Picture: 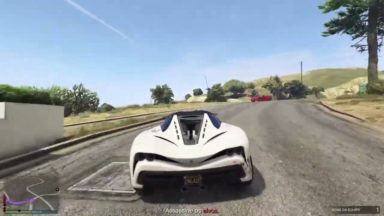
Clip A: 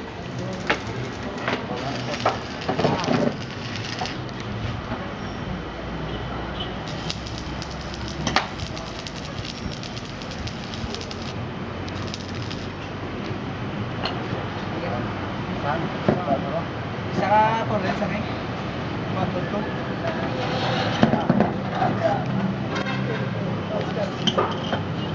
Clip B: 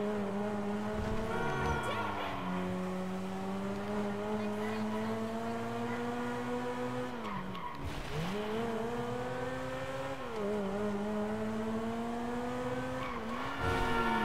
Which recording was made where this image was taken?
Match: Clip B